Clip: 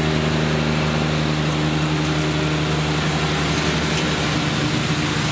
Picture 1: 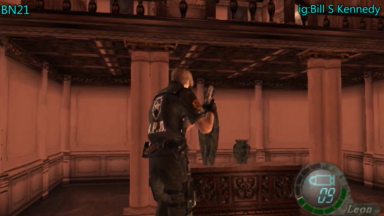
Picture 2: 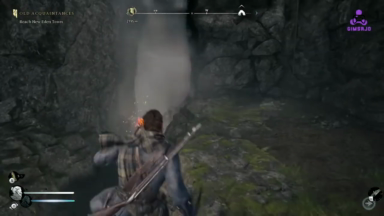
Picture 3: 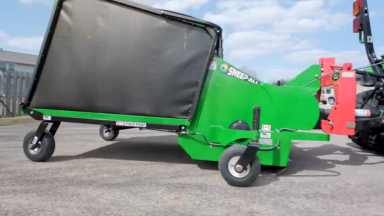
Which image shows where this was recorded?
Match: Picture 3